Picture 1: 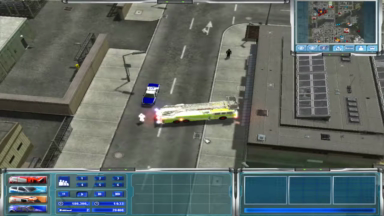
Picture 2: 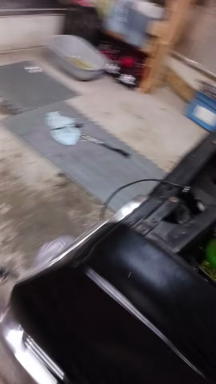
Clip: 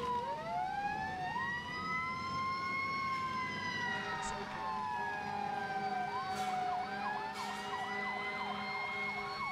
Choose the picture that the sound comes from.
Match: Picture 1